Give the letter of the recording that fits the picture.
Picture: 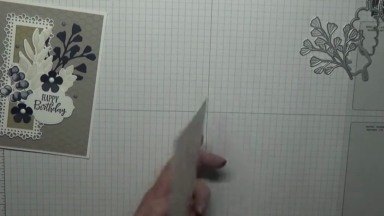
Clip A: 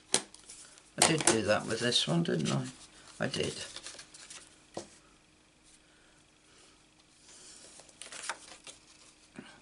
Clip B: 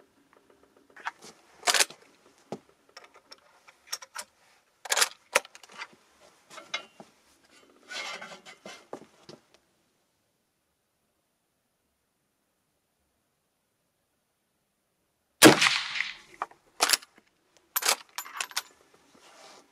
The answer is A